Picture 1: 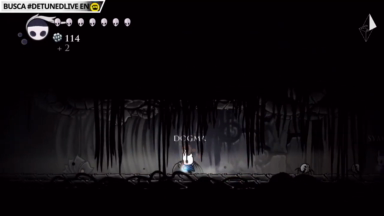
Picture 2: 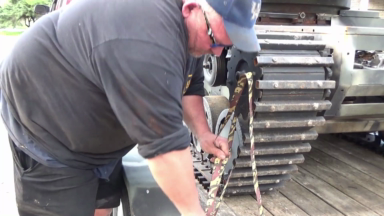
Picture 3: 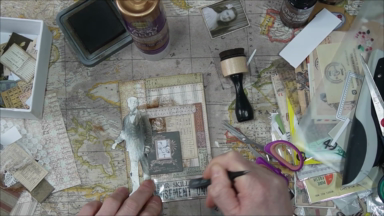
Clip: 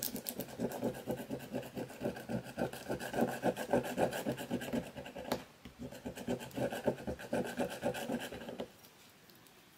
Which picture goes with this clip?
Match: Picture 3